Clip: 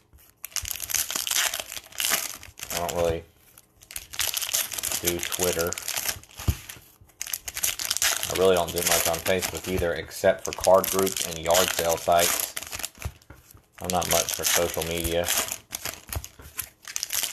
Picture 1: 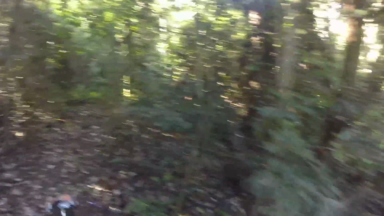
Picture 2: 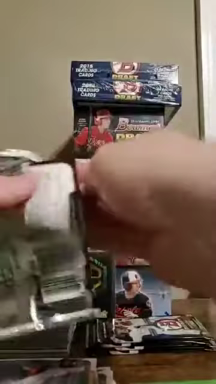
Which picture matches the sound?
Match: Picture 2